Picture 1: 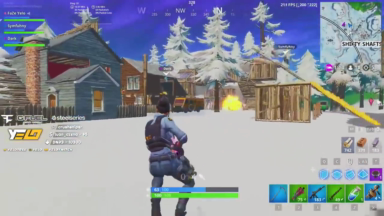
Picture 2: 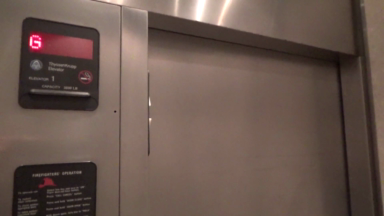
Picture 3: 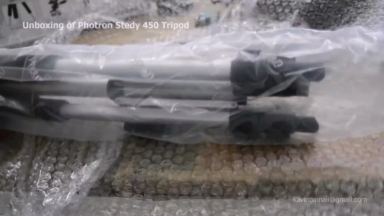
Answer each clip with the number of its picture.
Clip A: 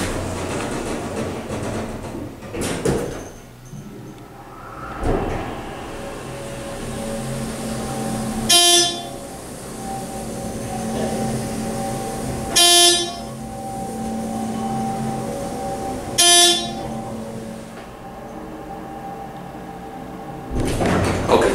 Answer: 2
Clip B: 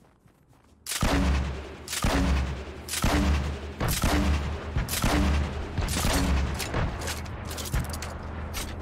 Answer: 1